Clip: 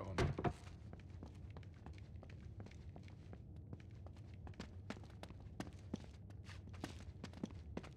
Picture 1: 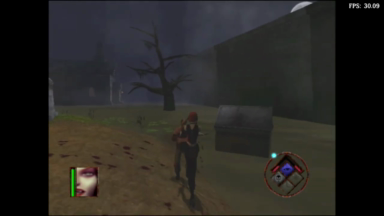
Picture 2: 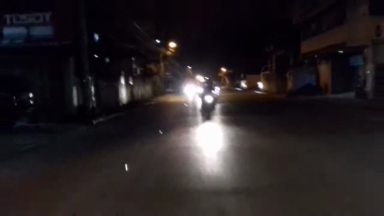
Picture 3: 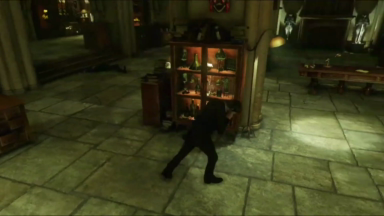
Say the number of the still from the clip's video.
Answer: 3